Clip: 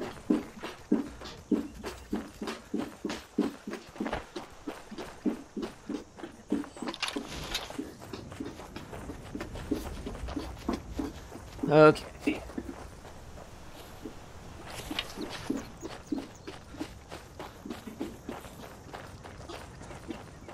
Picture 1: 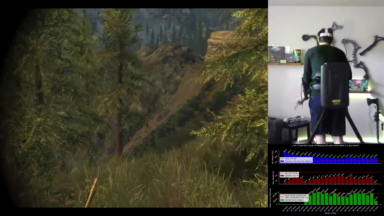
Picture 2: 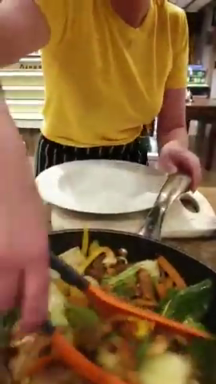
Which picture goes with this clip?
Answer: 1